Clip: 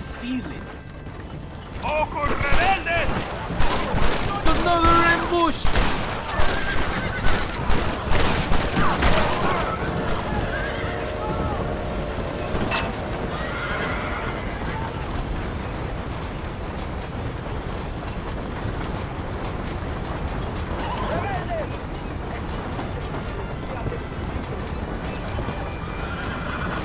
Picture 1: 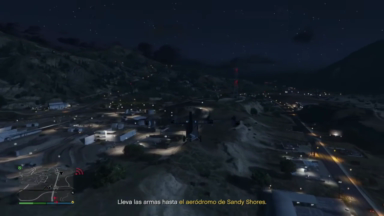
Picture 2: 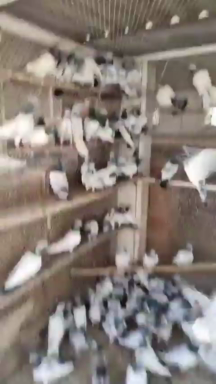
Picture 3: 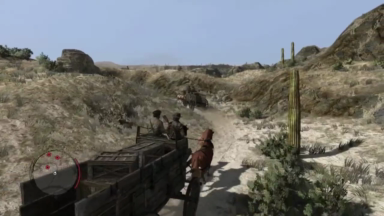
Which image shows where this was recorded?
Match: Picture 3